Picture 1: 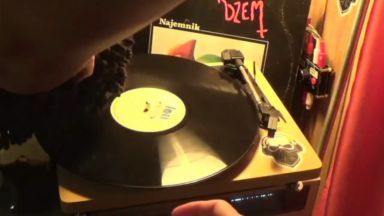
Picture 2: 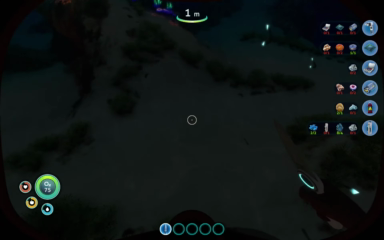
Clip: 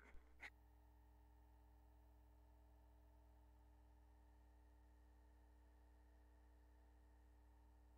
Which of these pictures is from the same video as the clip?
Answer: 1